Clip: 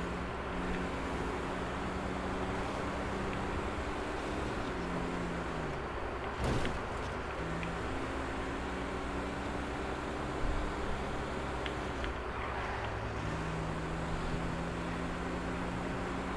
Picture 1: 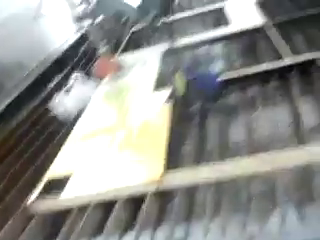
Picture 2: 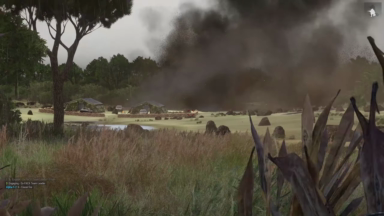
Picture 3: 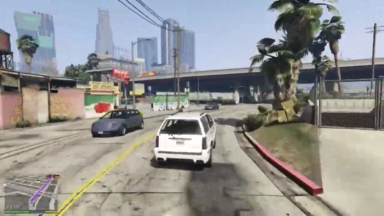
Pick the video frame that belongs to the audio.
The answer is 3